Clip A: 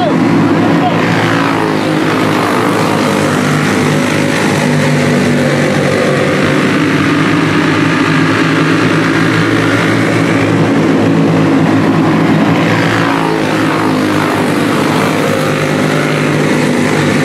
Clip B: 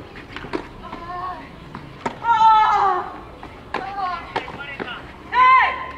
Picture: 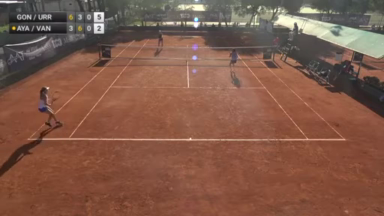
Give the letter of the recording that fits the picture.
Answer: B